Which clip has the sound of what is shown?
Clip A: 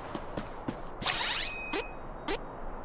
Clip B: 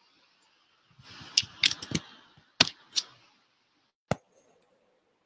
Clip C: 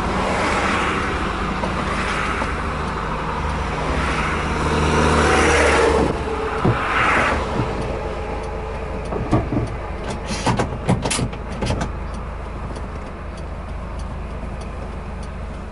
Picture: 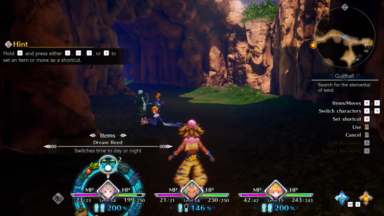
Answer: A